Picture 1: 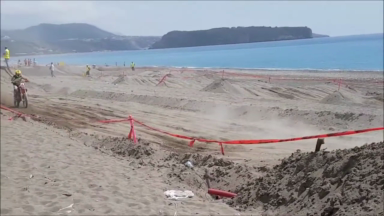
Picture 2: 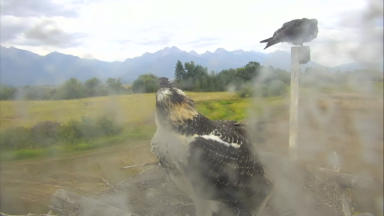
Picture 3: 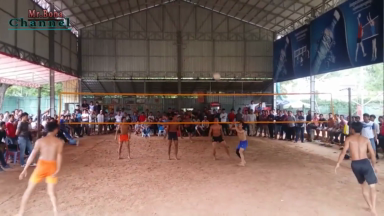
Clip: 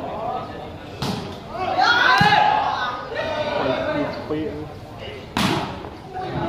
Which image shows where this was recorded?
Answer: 3